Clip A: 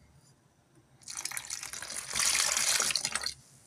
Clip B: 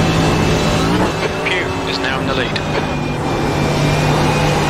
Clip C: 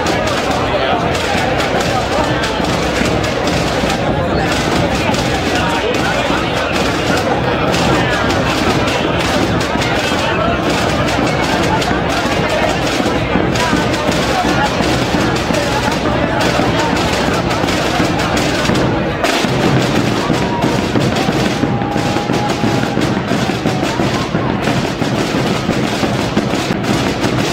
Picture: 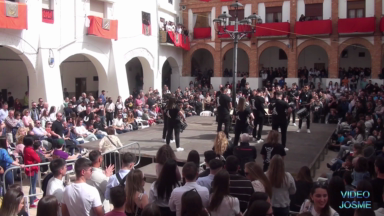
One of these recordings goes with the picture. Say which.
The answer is C